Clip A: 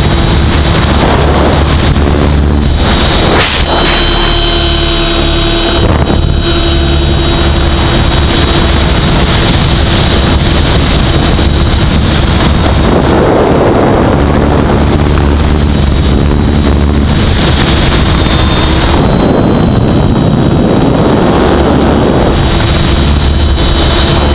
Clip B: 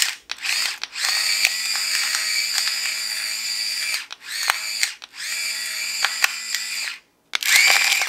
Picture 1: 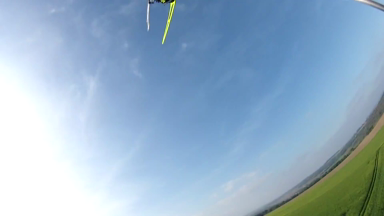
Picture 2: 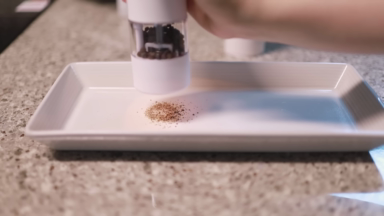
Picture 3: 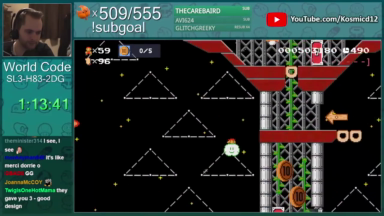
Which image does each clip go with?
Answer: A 1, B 2